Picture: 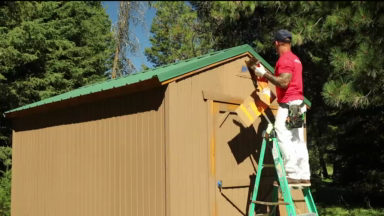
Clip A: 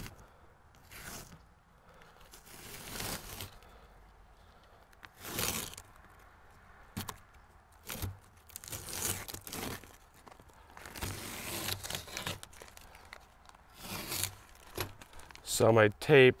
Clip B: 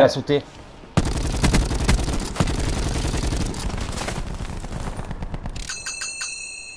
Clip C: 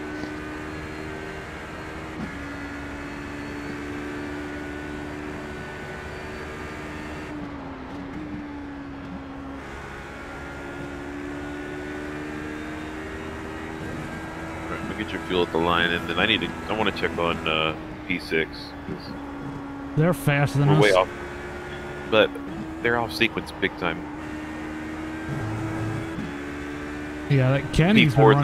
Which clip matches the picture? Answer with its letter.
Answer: A